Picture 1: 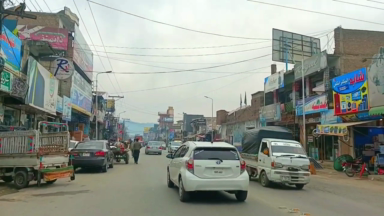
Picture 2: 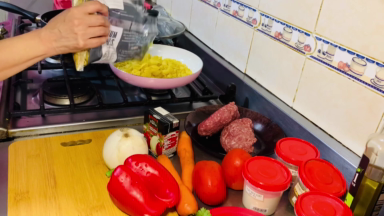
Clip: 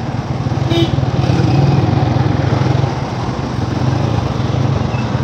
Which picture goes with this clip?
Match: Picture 1